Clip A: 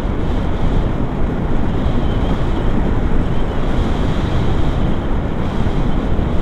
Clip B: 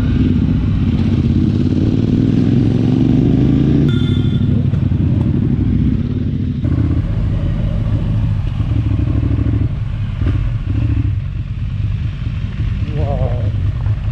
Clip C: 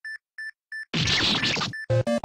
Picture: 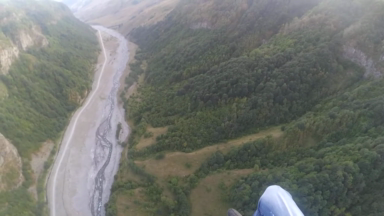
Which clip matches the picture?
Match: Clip A